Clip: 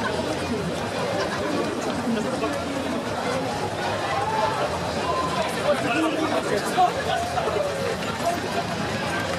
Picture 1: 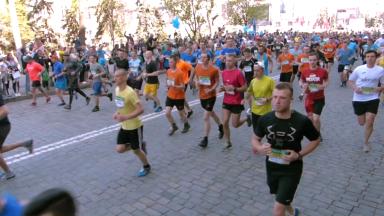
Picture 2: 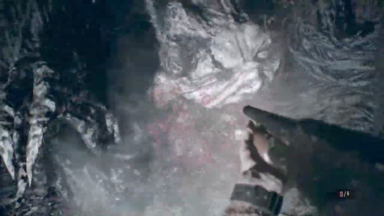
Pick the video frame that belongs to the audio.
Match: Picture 1